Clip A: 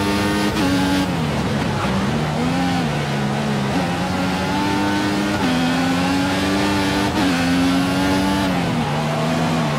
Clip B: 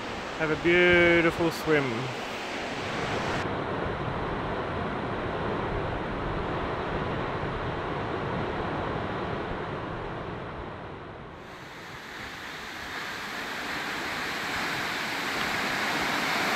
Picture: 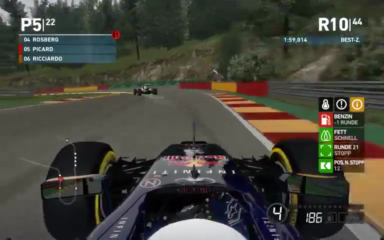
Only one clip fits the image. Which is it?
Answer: A